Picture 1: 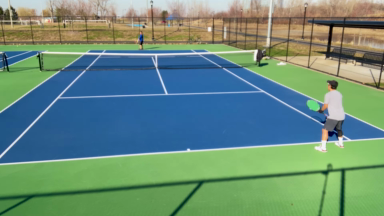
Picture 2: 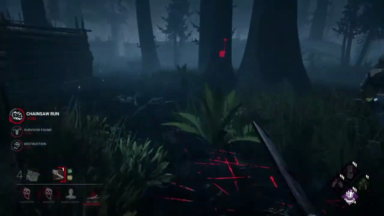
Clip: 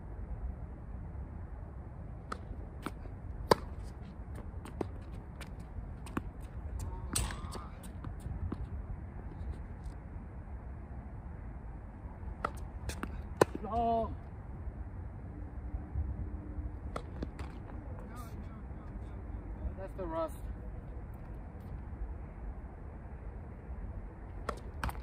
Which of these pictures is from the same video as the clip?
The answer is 1